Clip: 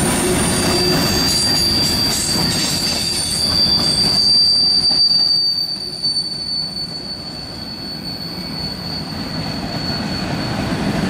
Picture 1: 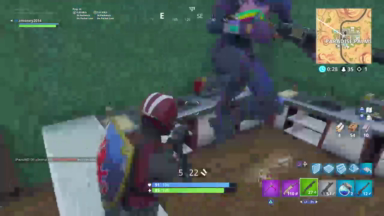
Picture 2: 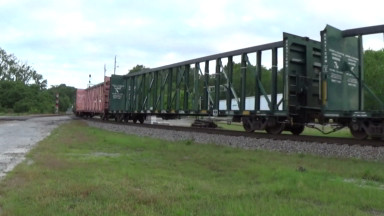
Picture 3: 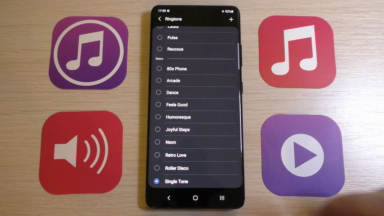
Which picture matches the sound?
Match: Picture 2